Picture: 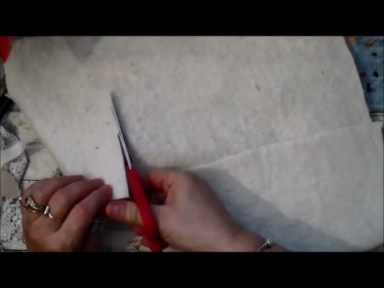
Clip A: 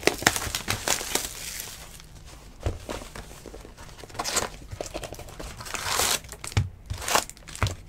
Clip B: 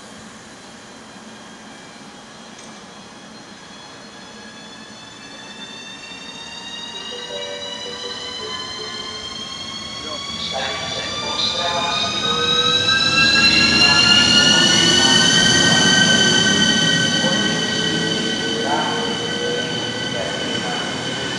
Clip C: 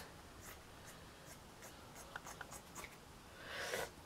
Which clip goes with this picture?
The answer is C